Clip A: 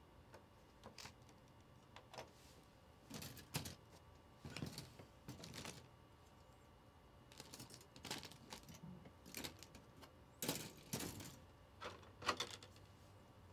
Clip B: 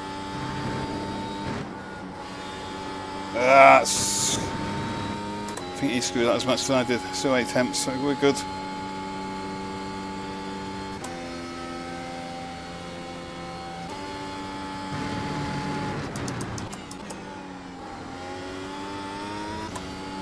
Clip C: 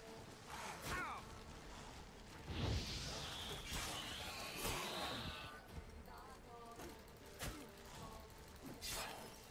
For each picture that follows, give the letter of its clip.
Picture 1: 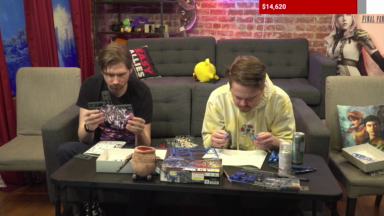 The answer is A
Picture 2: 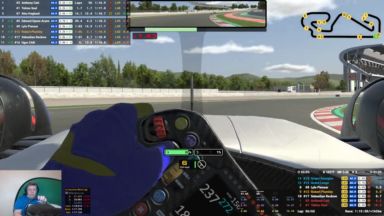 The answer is B